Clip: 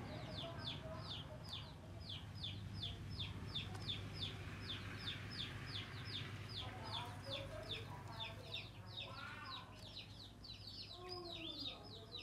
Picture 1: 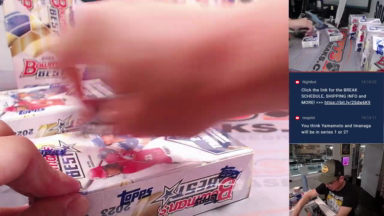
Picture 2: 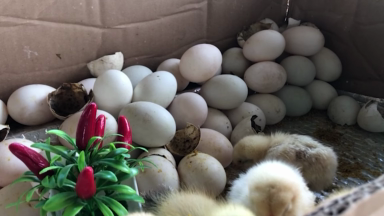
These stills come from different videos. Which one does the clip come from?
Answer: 2